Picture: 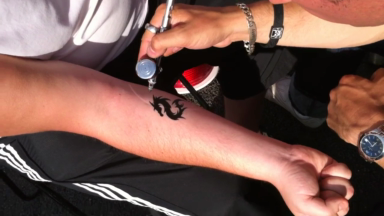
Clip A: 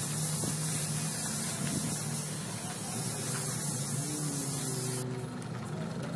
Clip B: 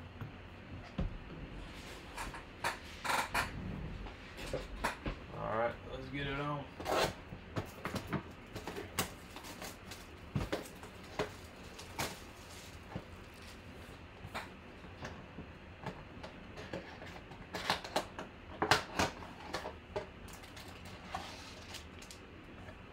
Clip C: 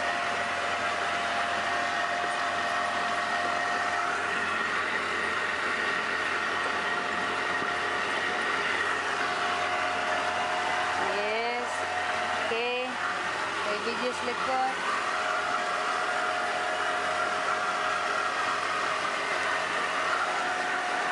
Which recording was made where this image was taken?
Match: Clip A